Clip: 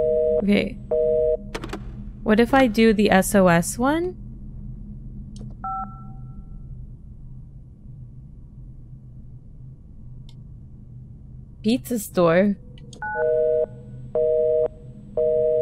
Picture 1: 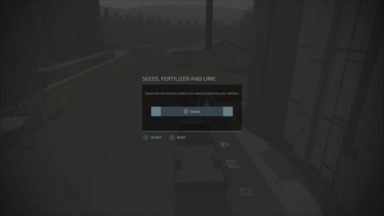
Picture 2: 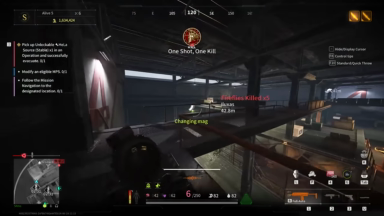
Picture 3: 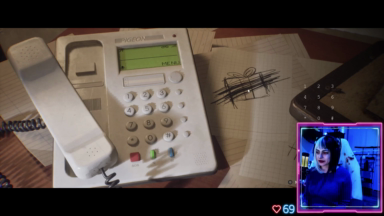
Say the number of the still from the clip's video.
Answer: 3